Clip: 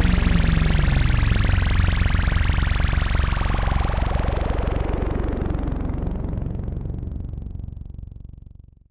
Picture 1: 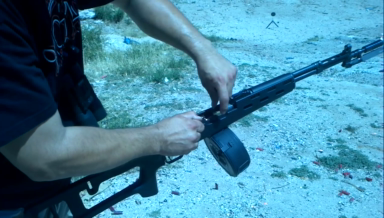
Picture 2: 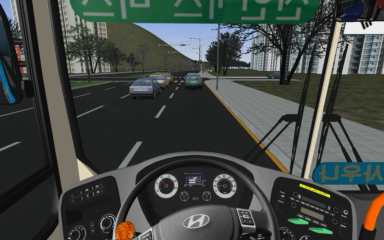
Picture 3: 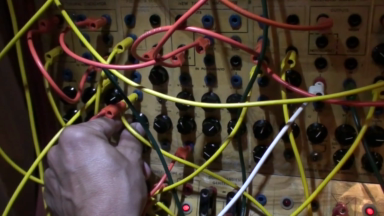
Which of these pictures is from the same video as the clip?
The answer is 3